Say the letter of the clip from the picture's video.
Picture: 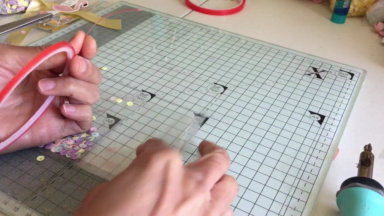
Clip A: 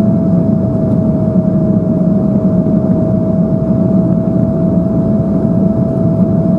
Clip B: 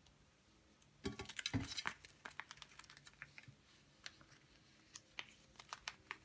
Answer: B